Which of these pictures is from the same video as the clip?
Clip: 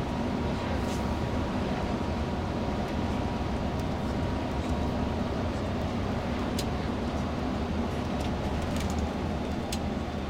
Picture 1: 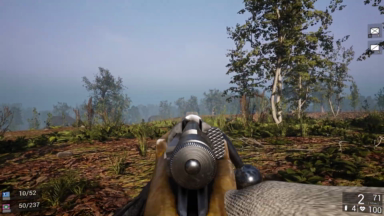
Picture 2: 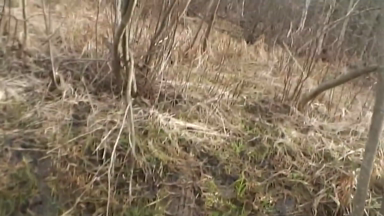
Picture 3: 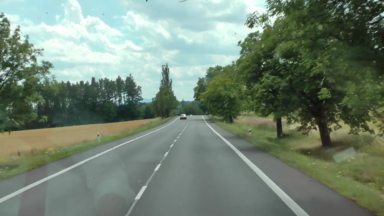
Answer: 3